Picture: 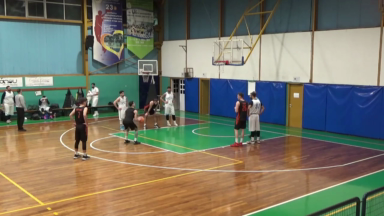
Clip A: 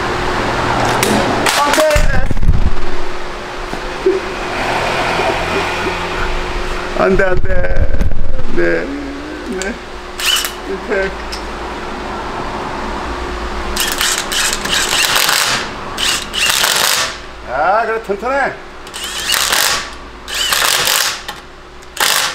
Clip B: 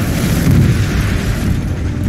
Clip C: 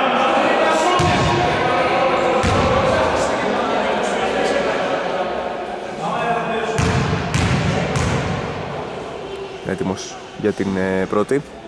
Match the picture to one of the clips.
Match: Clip C